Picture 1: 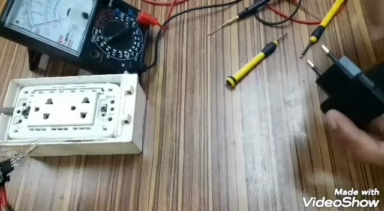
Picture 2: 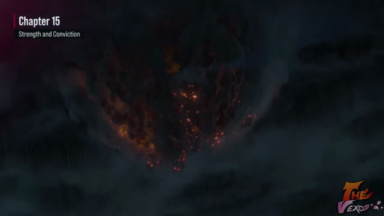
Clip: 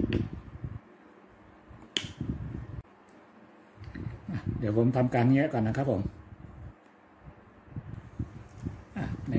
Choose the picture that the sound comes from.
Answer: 1